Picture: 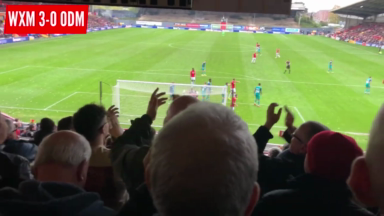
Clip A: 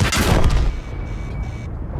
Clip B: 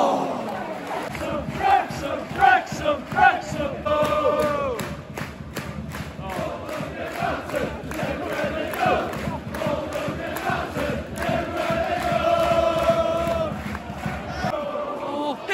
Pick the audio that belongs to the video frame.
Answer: B